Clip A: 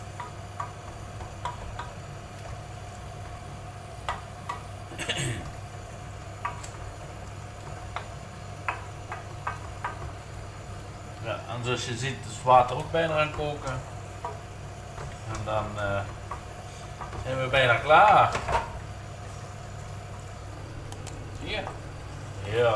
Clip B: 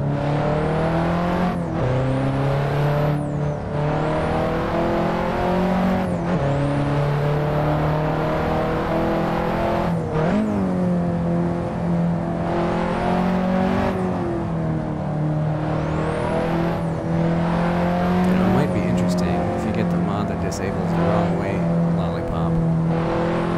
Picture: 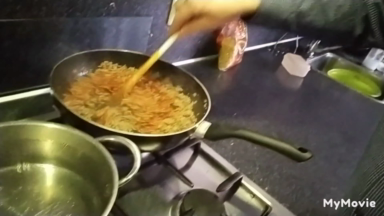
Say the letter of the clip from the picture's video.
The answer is A